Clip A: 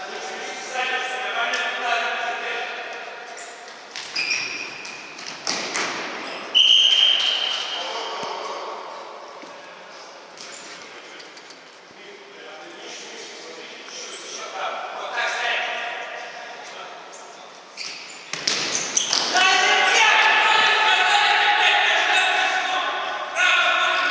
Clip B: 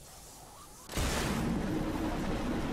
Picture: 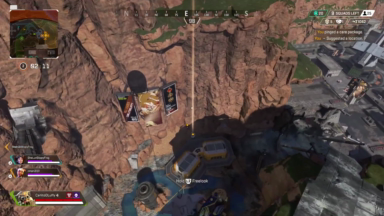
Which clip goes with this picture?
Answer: B